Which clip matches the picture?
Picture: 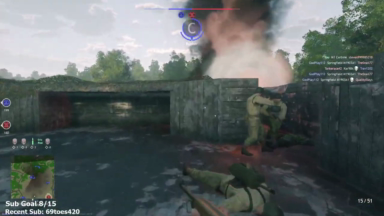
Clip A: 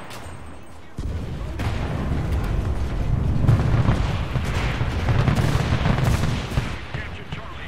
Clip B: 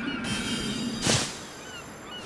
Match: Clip A